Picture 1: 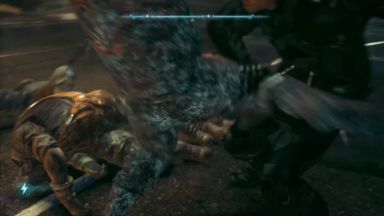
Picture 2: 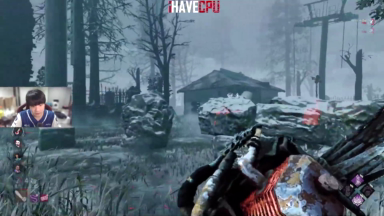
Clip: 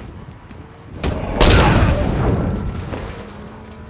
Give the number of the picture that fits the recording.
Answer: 1